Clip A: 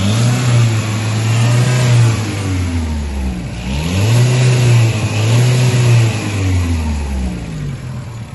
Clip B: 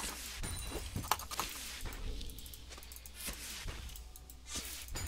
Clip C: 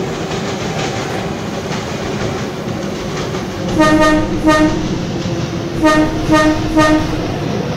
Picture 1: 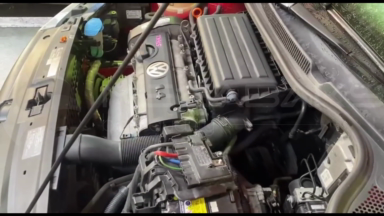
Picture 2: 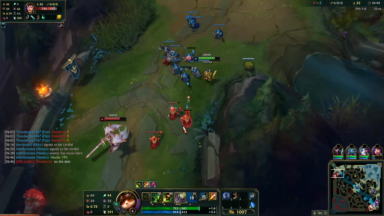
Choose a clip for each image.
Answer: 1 A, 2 B